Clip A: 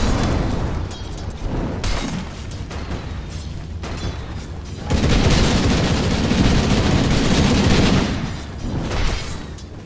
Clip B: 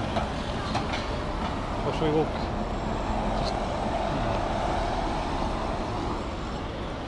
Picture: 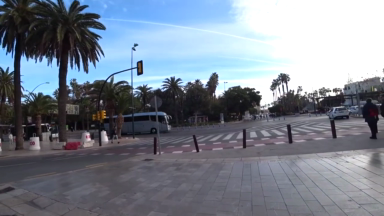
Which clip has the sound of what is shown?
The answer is B